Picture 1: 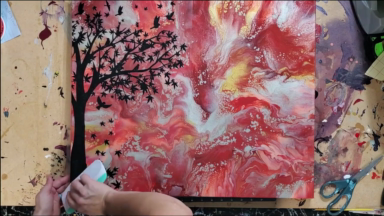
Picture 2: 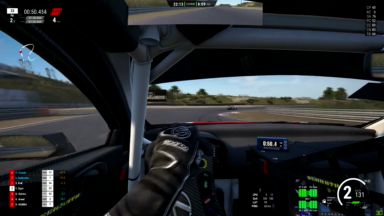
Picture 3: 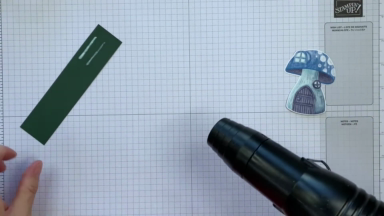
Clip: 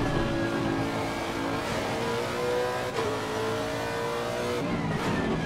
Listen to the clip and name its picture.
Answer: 2